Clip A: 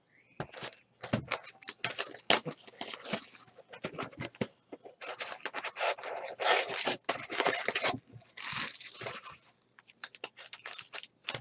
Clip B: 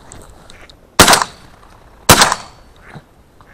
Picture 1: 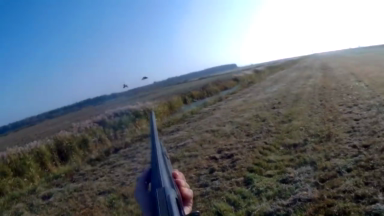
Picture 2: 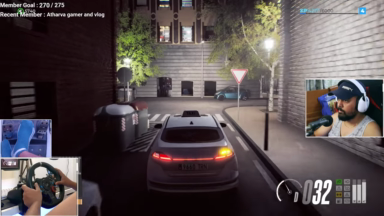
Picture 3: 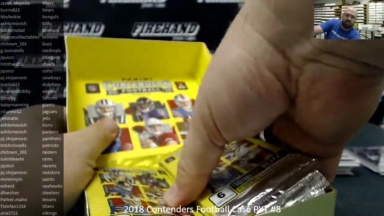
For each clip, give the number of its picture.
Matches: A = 3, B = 1